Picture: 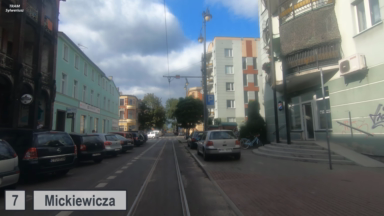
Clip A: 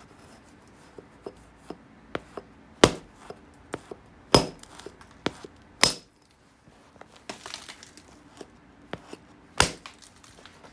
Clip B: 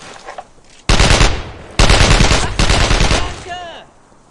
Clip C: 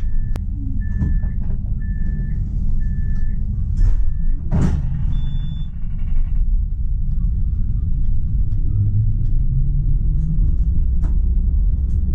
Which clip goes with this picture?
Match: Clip C